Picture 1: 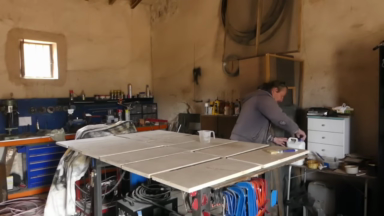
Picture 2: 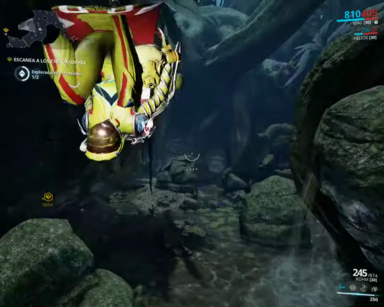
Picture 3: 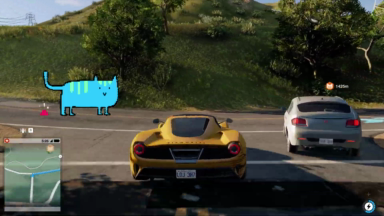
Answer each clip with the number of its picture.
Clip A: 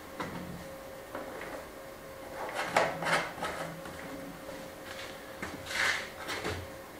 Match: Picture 1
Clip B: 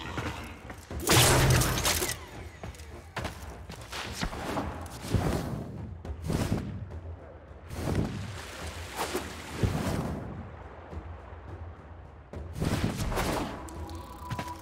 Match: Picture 2